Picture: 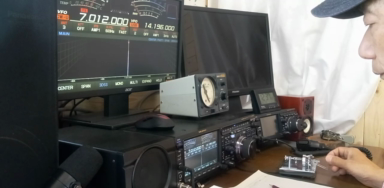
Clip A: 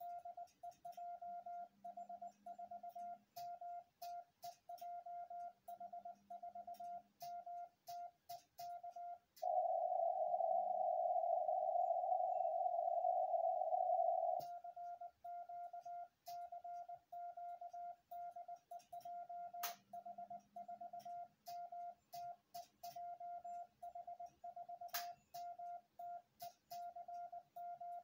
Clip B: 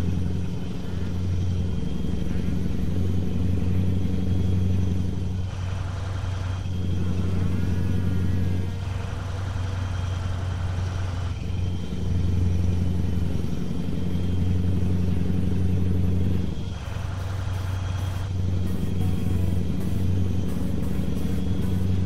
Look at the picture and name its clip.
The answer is A